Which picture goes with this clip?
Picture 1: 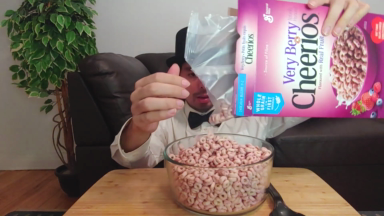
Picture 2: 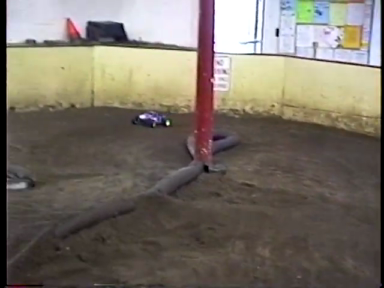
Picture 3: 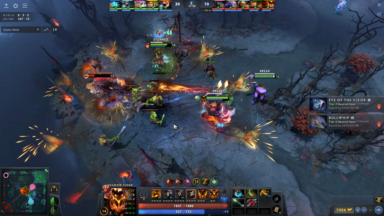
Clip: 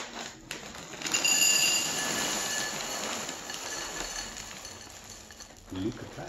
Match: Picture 1